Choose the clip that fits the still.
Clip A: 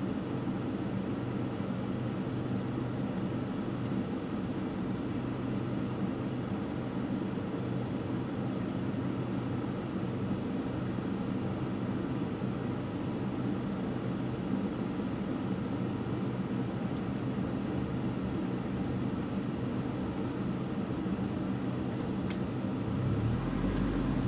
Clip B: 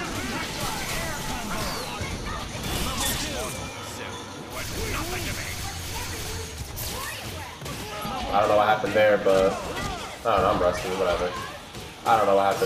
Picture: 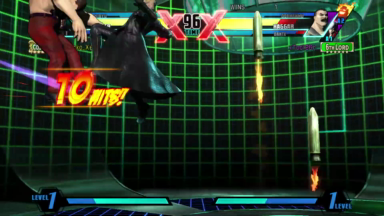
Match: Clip B